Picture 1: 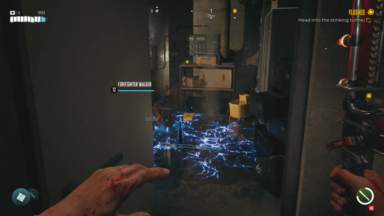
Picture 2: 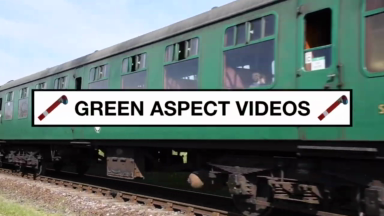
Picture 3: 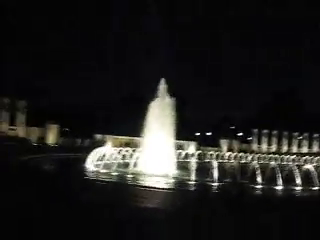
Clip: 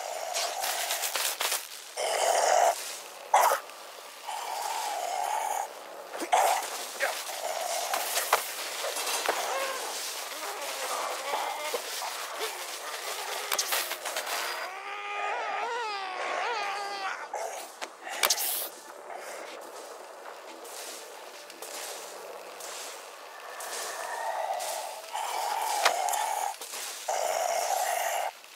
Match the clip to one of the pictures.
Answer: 1